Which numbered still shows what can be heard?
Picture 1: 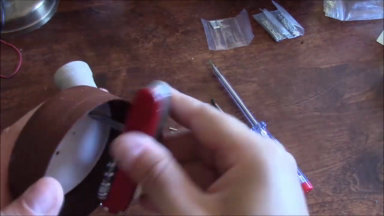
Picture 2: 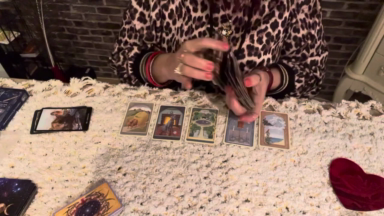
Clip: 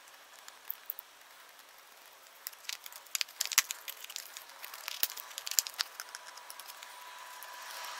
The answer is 1